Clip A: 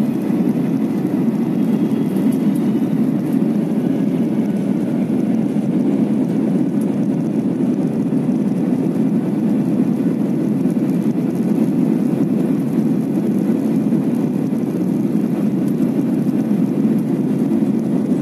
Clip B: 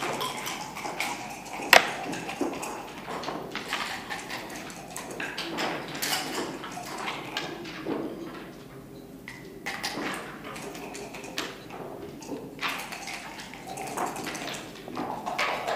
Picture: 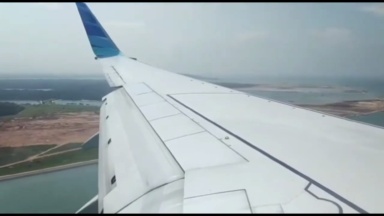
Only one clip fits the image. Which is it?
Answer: A